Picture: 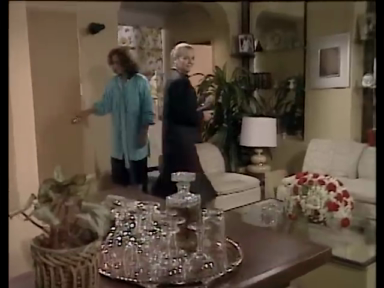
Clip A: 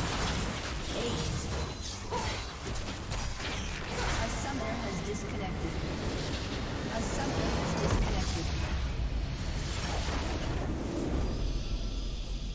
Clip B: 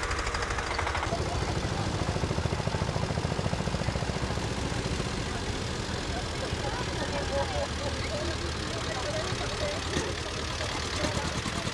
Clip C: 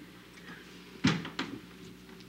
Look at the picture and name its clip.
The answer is C